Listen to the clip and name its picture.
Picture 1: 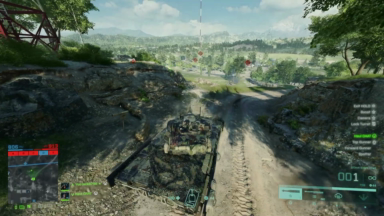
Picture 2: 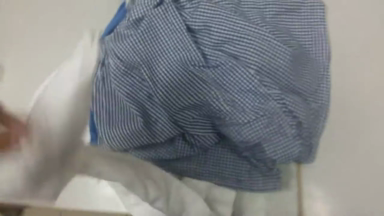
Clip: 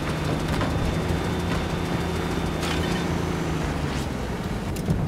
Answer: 1